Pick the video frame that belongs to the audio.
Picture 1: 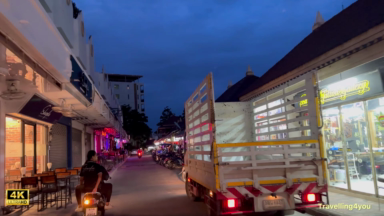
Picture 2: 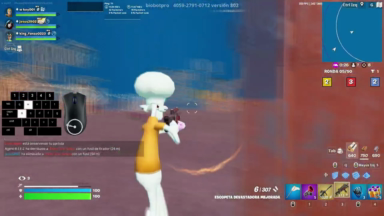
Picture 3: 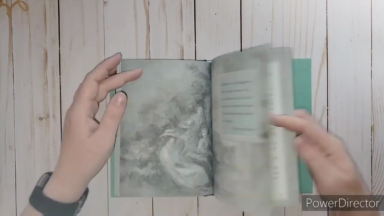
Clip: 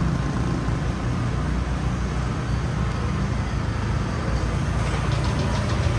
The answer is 1